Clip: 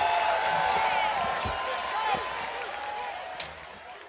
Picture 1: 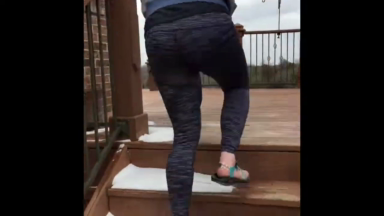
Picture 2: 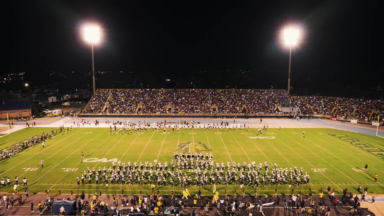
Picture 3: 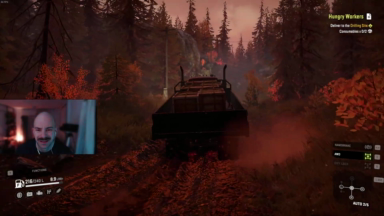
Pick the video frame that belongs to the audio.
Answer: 2